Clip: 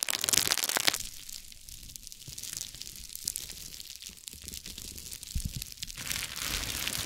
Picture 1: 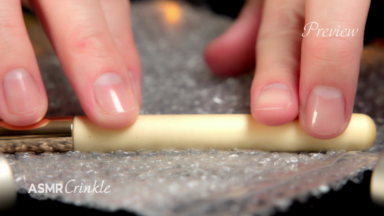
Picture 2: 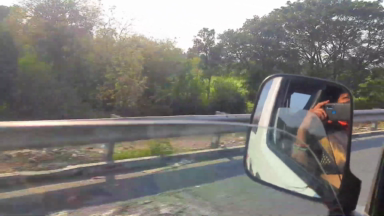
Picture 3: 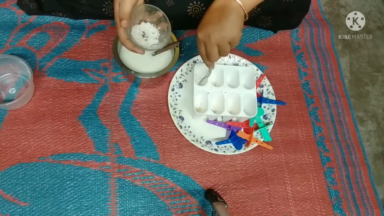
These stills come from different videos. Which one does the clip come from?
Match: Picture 1